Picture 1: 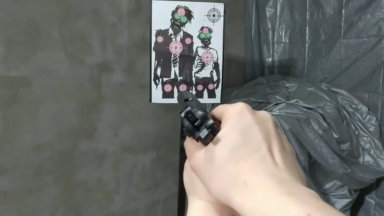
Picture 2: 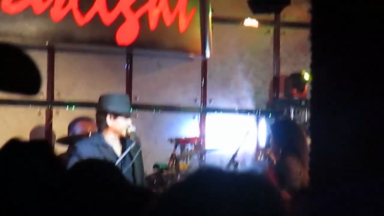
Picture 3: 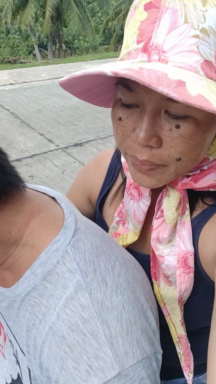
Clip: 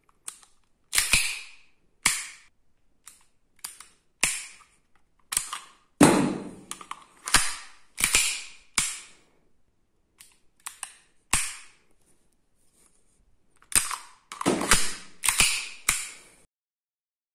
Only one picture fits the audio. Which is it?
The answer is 1